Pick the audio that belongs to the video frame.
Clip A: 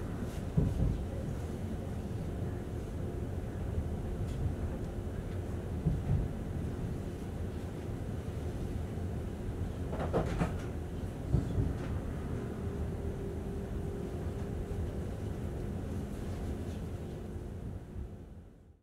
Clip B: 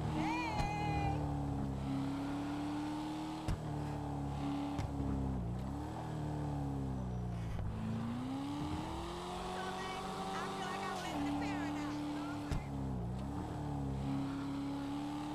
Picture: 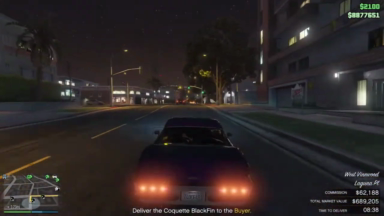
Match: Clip B